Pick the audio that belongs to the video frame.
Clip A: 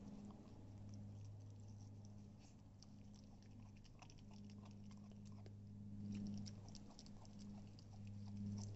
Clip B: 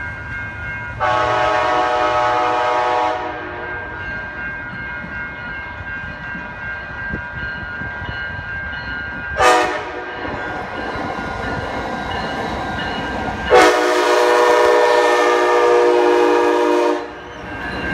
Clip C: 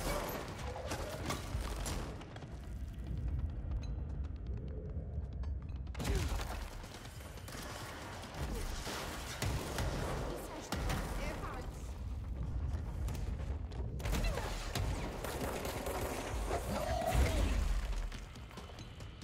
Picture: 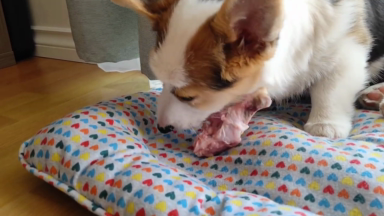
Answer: A